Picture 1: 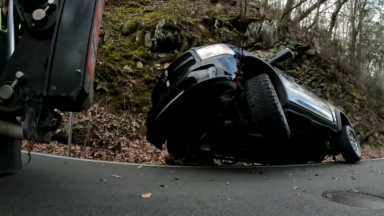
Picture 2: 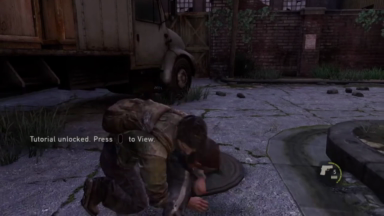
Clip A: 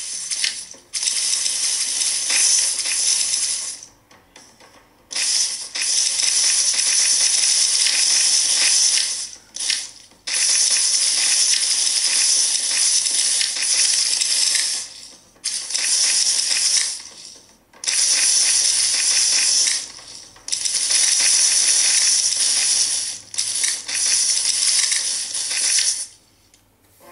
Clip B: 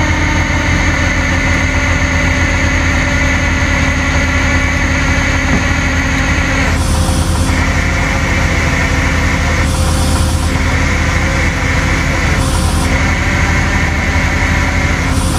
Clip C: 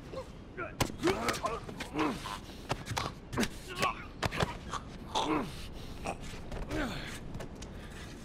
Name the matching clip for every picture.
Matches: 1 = B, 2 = C